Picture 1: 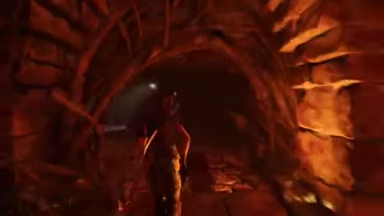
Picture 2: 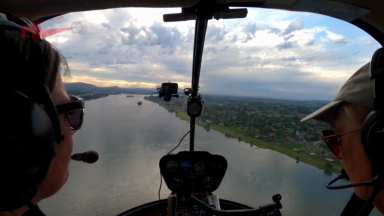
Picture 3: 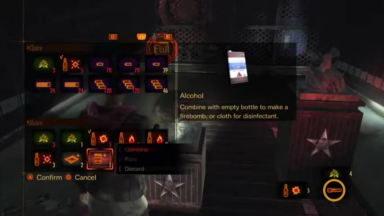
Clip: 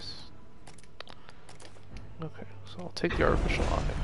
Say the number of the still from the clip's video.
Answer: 3